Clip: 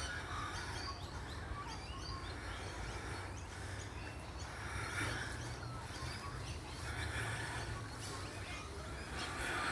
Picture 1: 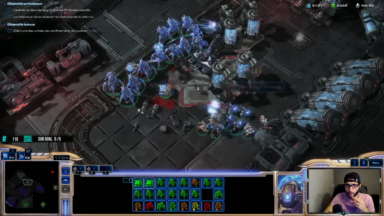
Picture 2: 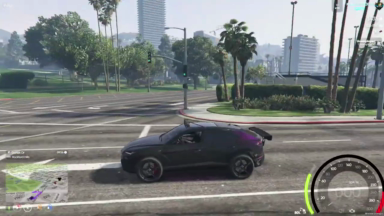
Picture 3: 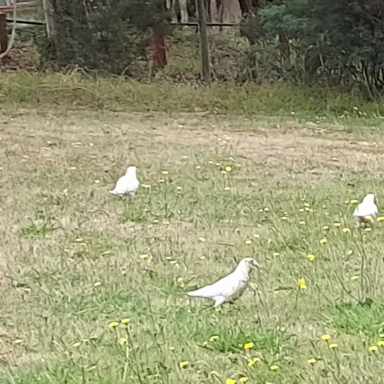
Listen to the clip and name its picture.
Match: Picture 3